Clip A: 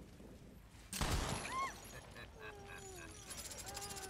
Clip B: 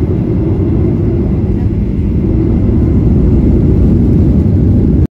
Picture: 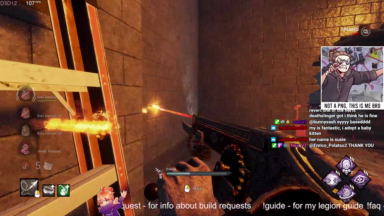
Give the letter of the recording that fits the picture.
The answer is A